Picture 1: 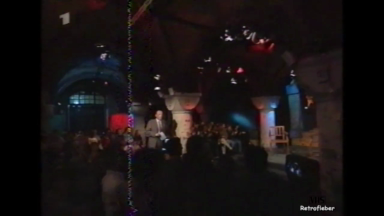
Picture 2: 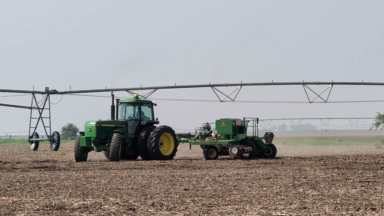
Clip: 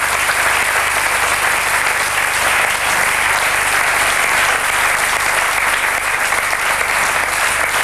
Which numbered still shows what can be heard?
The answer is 1